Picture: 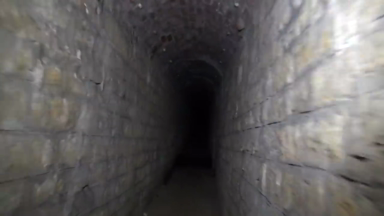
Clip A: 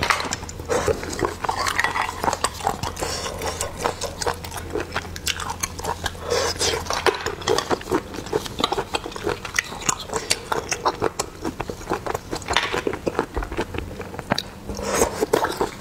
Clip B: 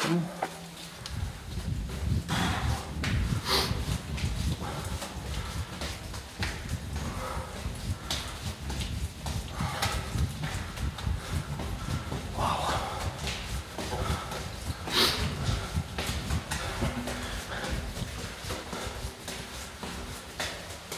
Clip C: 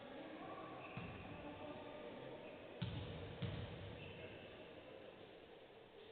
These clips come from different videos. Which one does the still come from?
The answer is B